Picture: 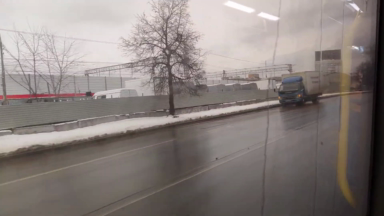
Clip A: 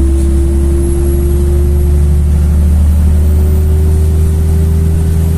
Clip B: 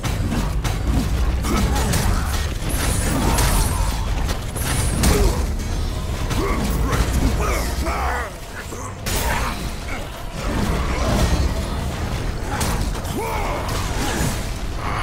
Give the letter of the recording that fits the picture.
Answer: A